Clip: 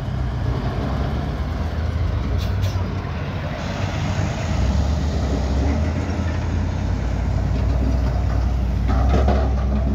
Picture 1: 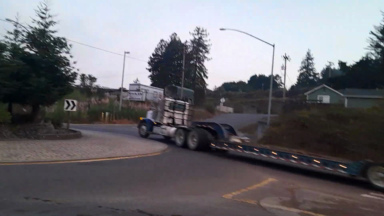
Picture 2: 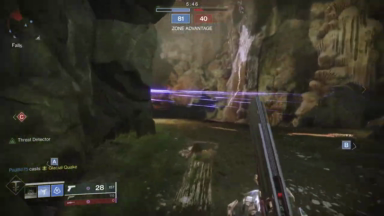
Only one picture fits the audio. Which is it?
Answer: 1